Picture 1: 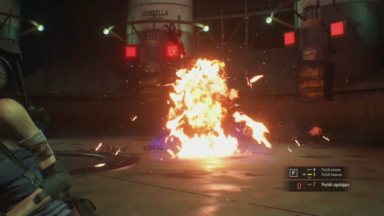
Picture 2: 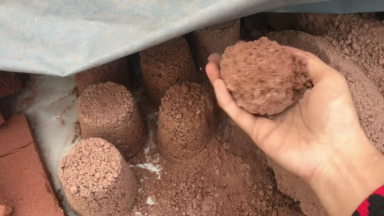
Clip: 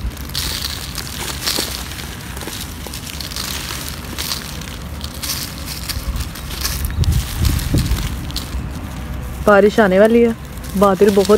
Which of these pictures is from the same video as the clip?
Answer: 2